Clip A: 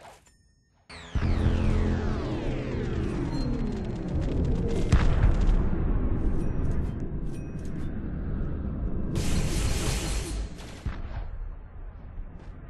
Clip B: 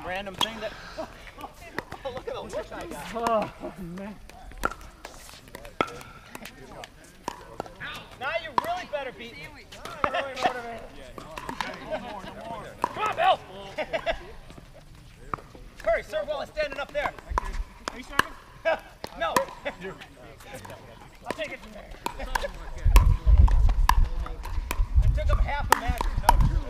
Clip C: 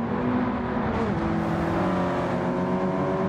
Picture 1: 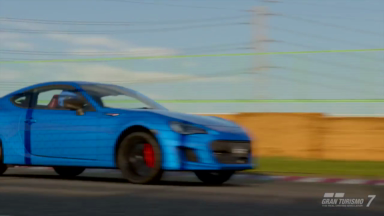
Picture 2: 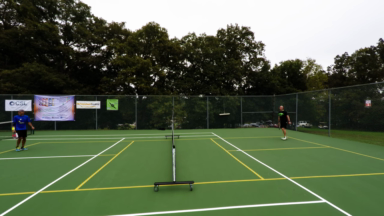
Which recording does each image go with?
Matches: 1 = C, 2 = B